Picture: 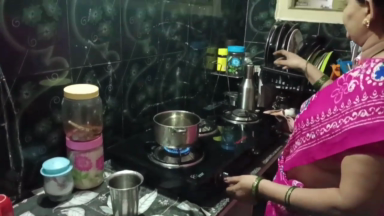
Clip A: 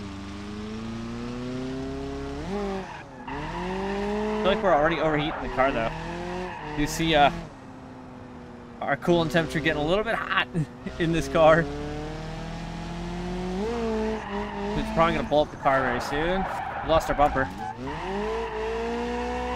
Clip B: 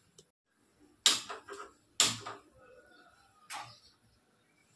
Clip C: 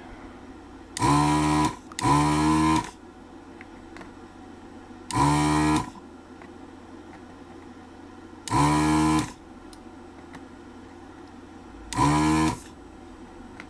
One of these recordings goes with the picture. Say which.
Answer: B